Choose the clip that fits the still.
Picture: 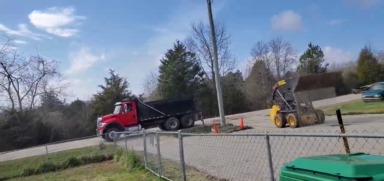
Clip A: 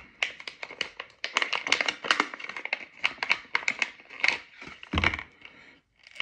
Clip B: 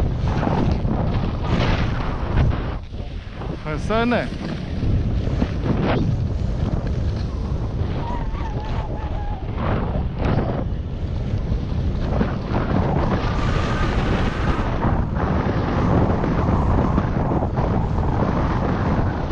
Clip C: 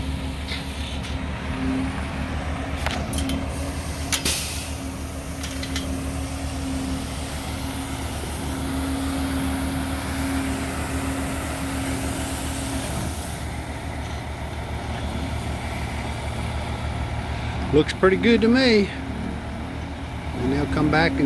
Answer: C